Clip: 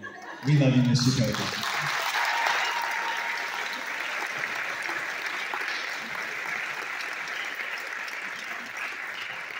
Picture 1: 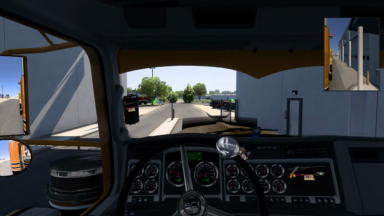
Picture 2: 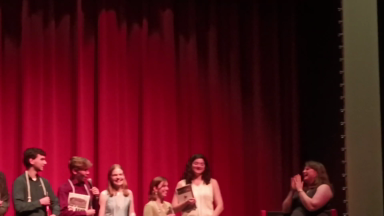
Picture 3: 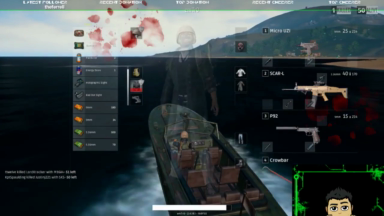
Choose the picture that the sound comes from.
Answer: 2